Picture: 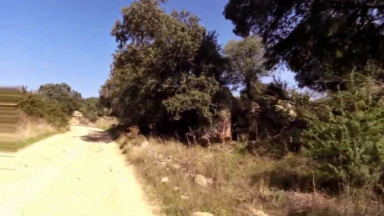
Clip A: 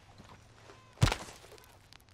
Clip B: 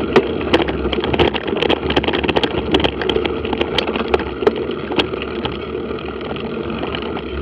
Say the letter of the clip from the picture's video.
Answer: B